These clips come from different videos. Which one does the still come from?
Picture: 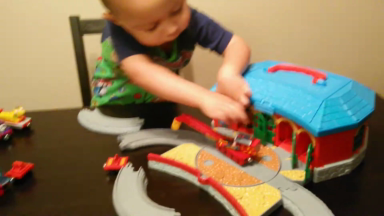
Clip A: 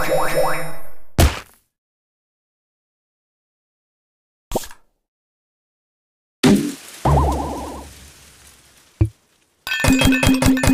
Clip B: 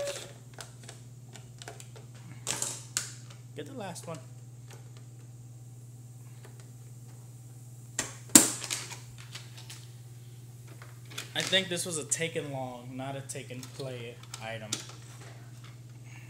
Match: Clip B